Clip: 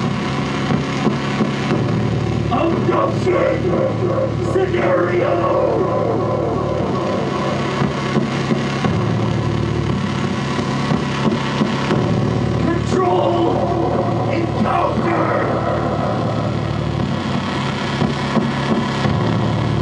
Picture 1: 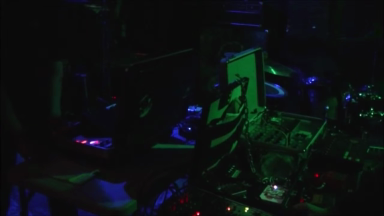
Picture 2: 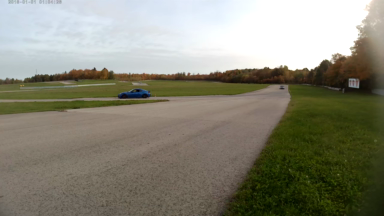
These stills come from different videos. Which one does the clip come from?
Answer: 1